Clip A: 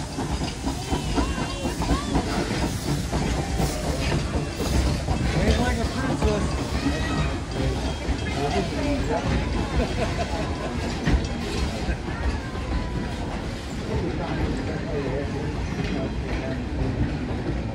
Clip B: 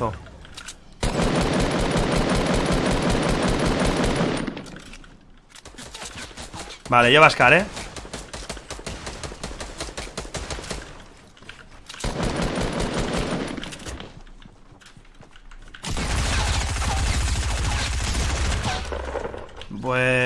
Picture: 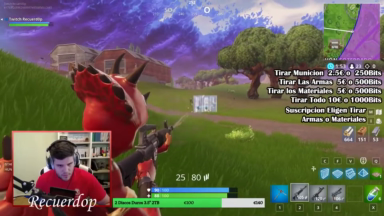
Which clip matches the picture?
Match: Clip B